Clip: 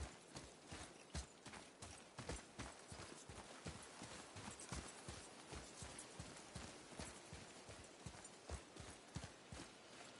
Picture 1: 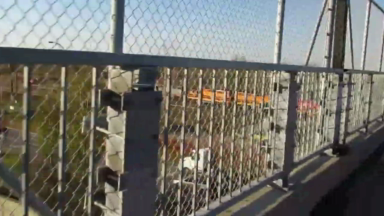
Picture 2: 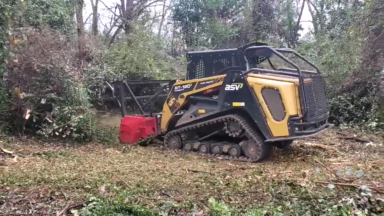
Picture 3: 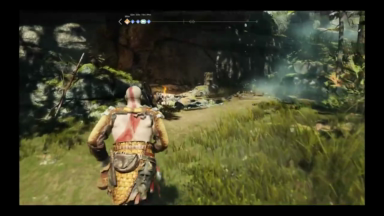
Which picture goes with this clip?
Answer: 3